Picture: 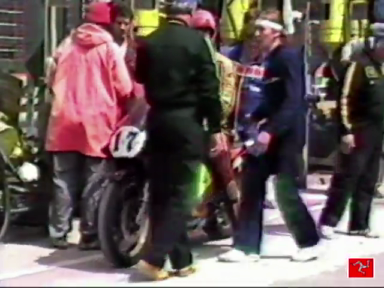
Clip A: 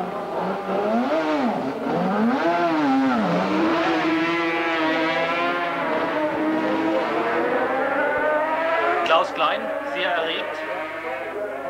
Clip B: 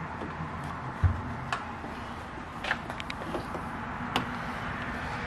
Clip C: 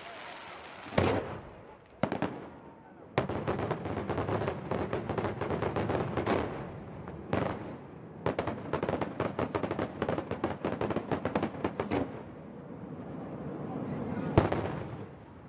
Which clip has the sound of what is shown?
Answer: A